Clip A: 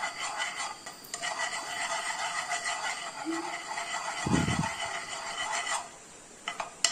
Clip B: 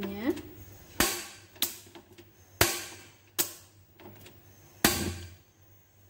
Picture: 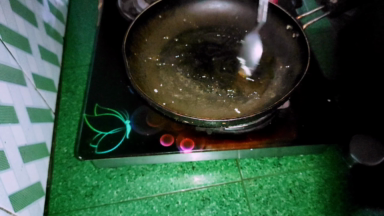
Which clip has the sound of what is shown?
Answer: A